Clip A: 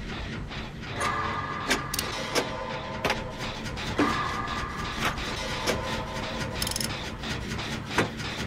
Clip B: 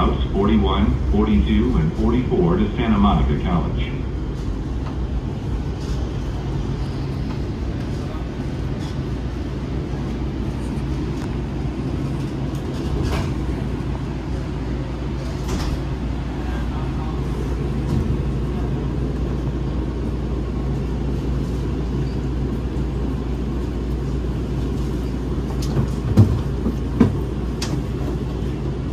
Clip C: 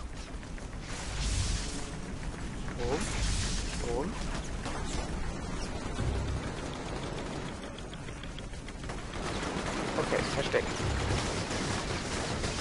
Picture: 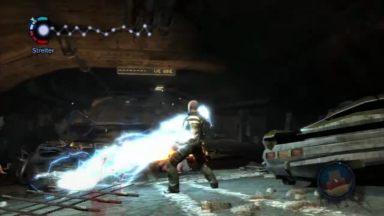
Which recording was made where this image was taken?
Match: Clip C